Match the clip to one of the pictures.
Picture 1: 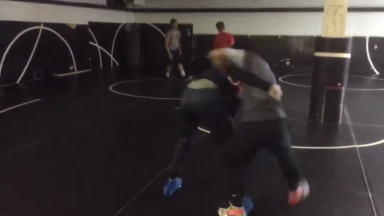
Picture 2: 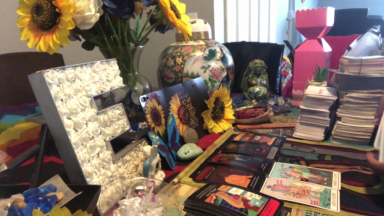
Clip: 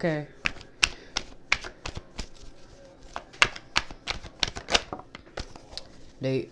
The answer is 2